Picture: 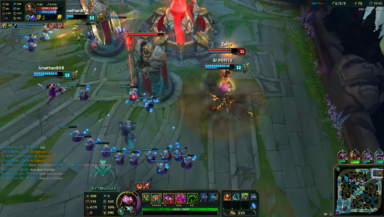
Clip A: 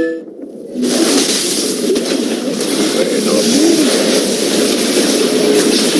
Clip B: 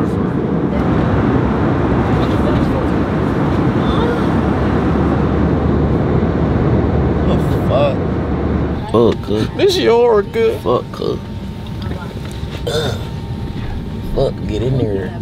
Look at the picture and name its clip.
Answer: A